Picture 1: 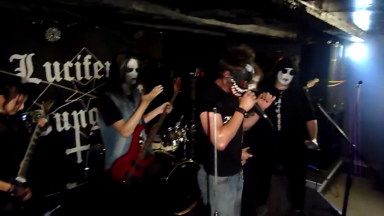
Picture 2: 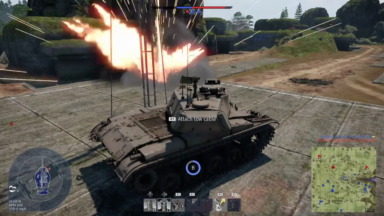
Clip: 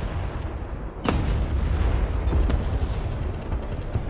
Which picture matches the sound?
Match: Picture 2